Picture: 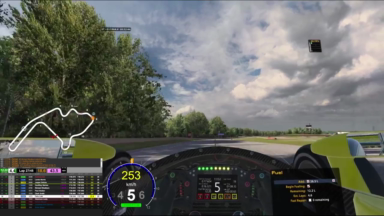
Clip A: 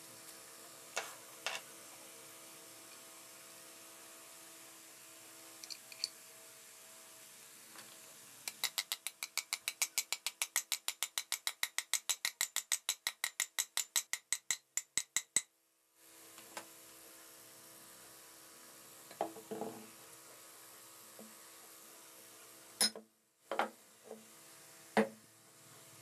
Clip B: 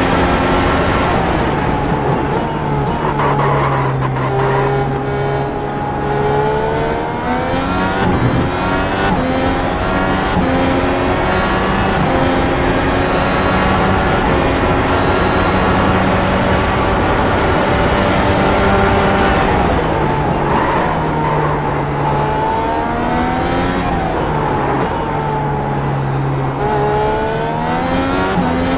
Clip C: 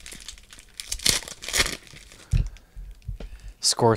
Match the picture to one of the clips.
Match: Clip B